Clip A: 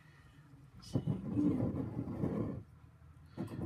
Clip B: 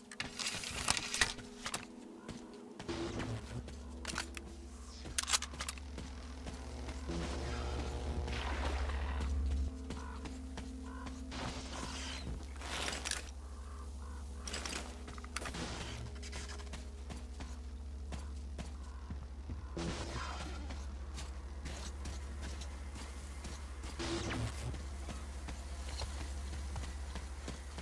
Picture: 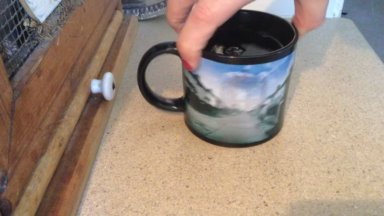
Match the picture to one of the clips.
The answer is A